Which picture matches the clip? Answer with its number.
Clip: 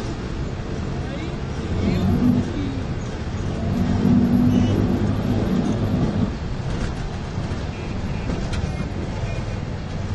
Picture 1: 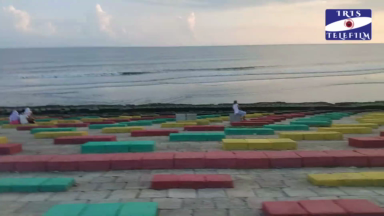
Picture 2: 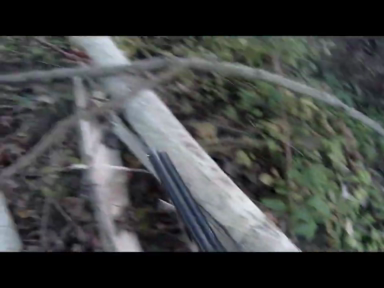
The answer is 1